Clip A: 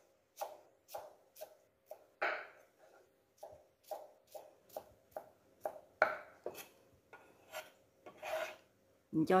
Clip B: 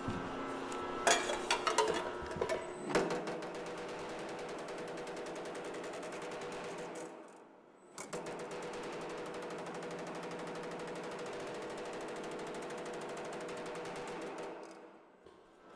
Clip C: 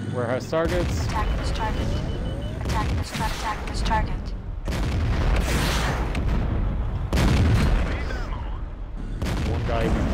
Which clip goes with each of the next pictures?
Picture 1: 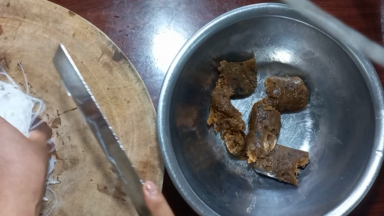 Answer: A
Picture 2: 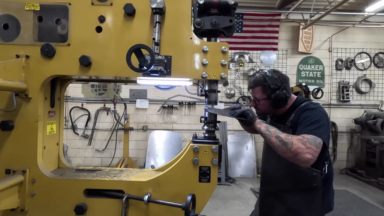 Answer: B